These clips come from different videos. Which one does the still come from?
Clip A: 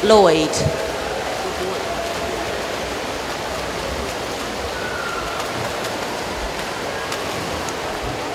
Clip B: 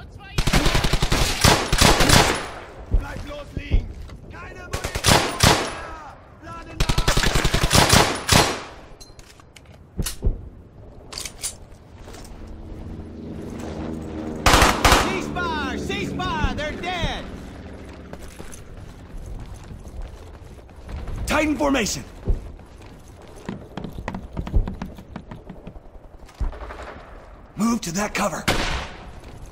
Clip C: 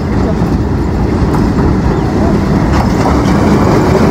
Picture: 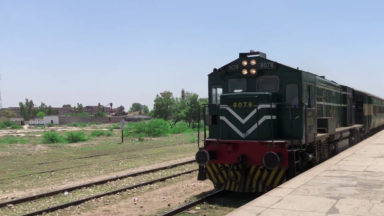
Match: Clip C